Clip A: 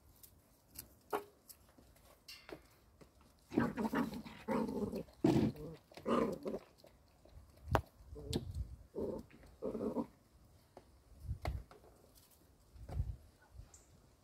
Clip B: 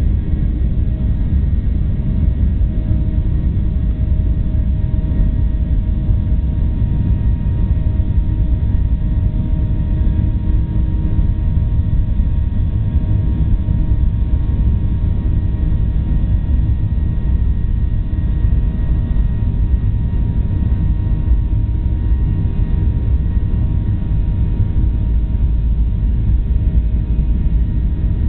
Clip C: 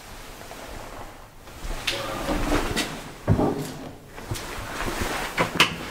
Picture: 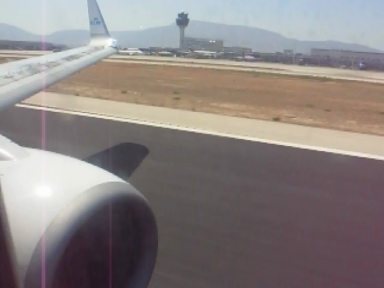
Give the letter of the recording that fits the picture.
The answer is B